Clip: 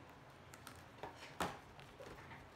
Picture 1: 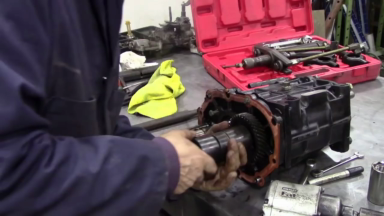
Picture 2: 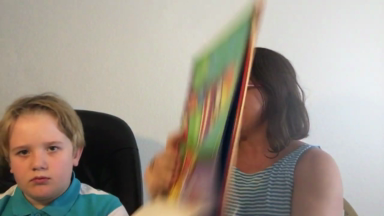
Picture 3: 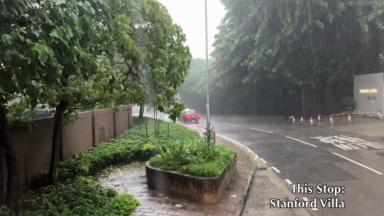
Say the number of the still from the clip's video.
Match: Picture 2